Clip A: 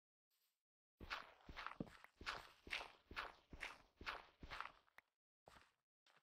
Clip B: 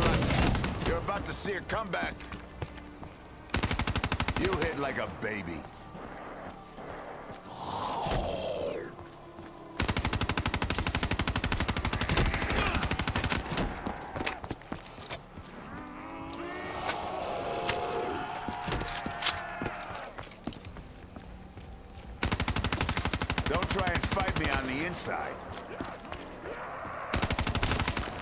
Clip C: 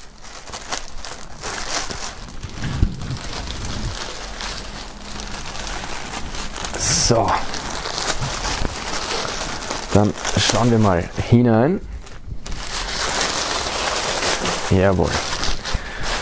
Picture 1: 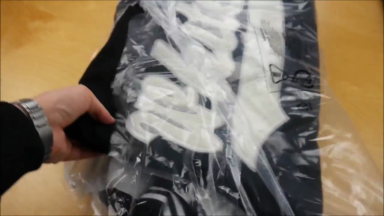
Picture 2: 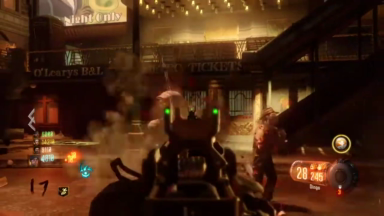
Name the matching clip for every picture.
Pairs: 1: C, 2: B